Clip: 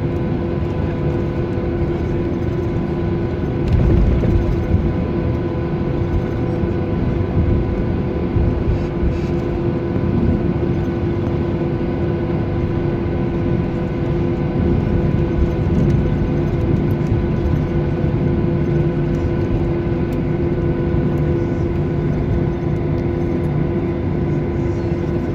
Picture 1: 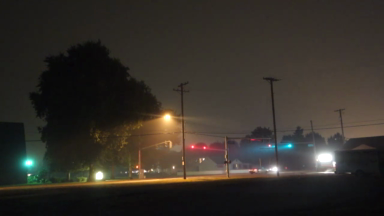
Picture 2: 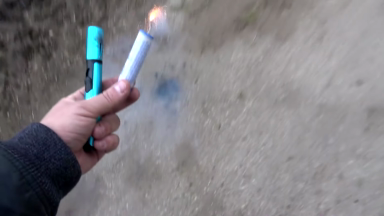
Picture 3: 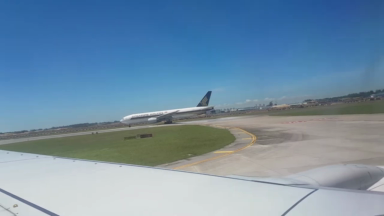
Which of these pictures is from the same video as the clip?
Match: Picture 3